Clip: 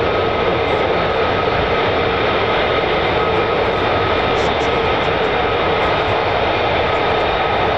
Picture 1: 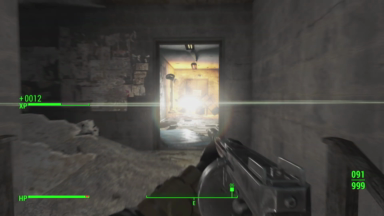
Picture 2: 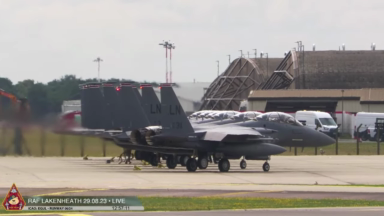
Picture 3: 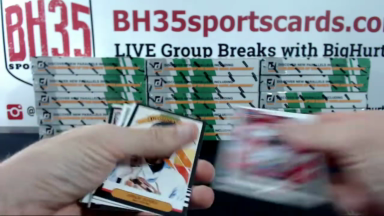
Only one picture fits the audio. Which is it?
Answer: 2